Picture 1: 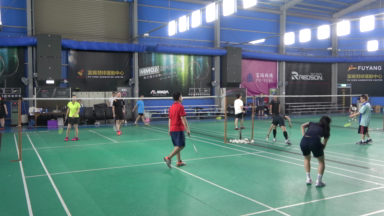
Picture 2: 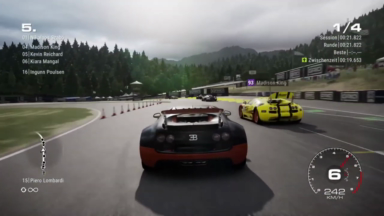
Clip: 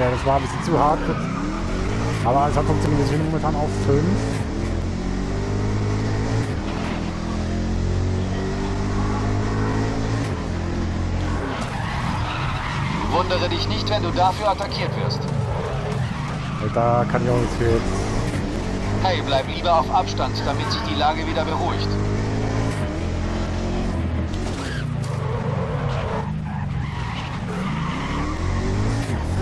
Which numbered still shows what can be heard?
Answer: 2